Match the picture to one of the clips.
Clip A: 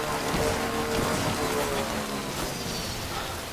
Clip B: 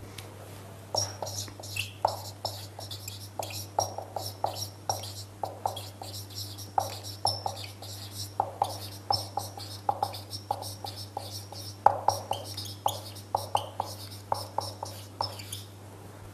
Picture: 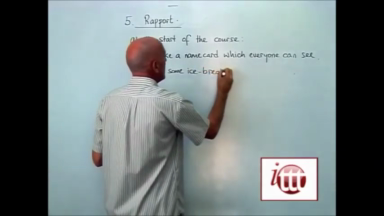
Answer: B